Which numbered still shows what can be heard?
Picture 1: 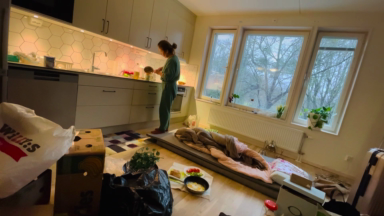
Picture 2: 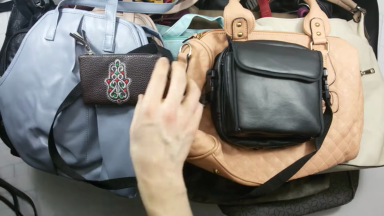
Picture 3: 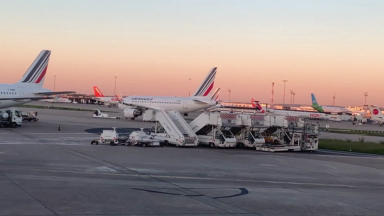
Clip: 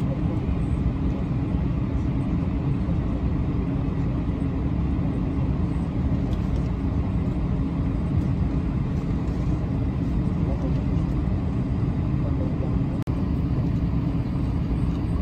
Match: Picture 3